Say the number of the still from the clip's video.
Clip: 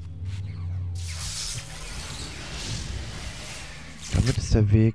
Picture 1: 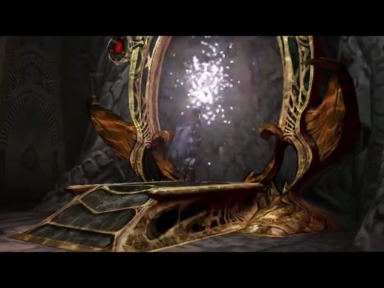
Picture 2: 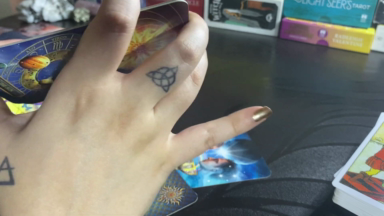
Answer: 1